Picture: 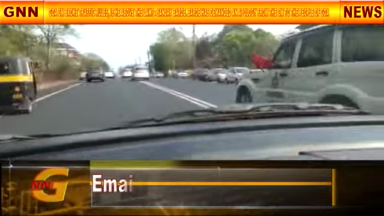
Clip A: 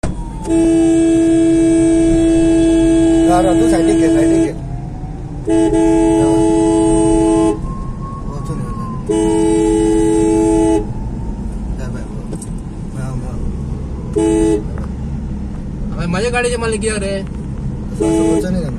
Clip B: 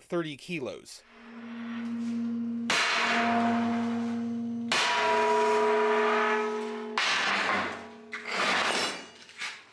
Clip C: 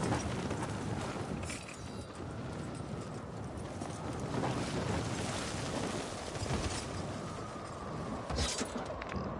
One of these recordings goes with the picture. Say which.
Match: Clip A